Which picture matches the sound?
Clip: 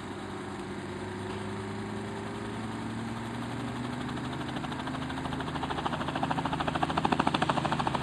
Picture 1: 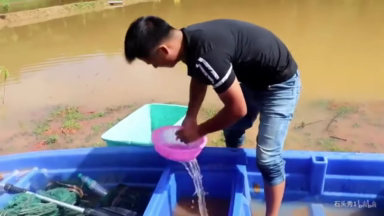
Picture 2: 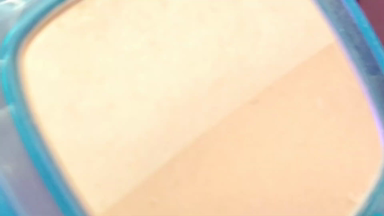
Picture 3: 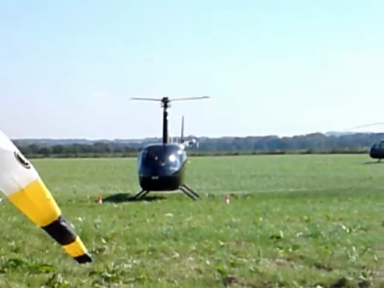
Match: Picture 3